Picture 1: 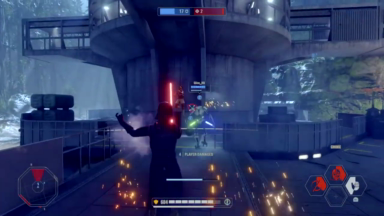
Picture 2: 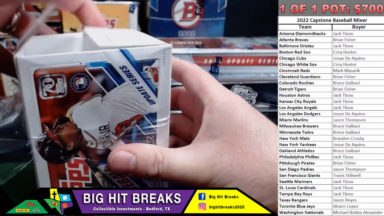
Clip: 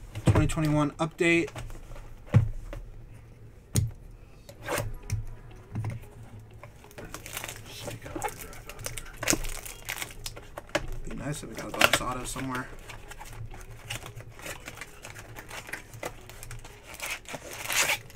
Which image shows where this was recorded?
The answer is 2